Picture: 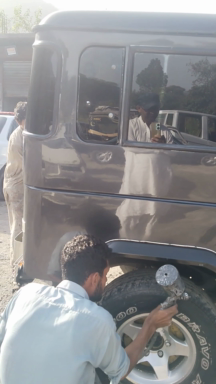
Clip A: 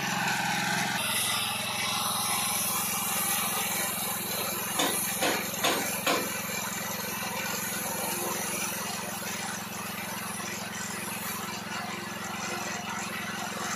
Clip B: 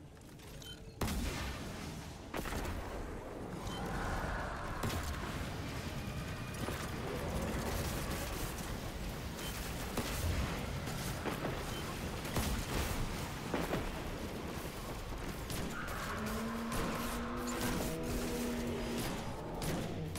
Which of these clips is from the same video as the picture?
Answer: A